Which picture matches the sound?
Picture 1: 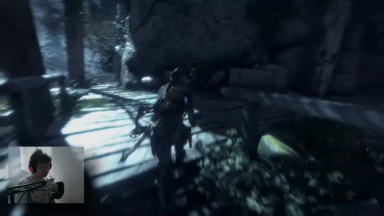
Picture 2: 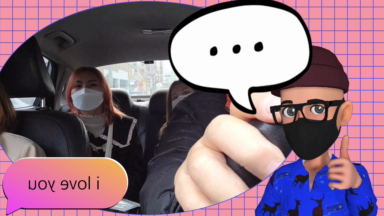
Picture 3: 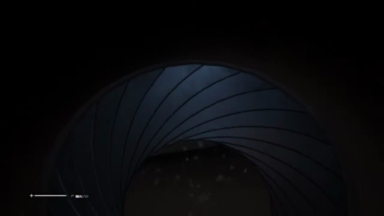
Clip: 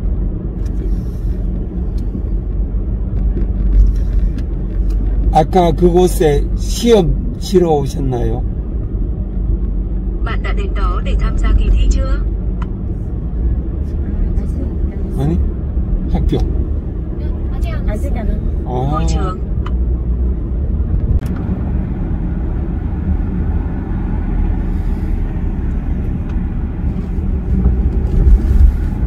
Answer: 2